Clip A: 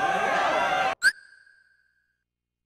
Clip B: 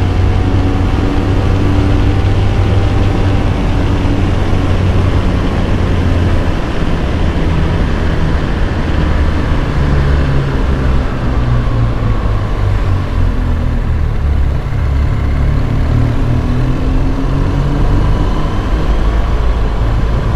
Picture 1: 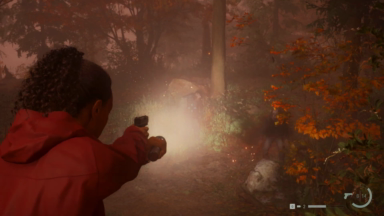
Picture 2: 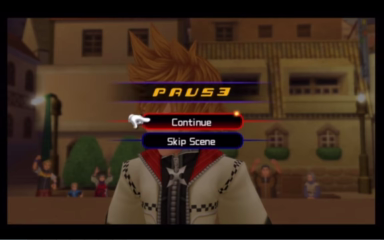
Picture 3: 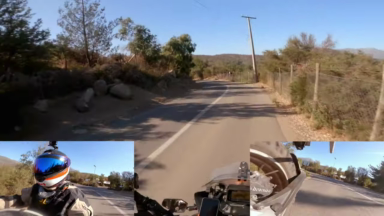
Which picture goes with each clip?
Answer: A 2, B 3